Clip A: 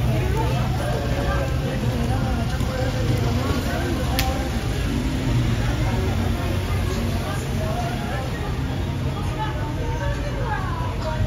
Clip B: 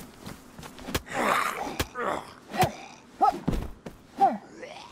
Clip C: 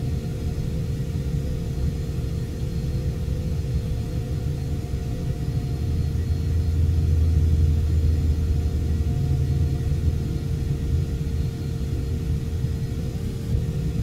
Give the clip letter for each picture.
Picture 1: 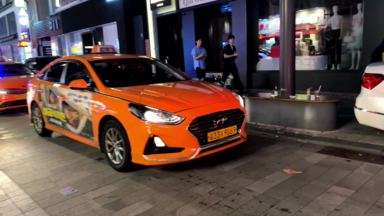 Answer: A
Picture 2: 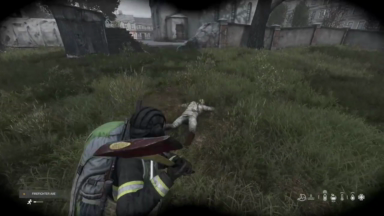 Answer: B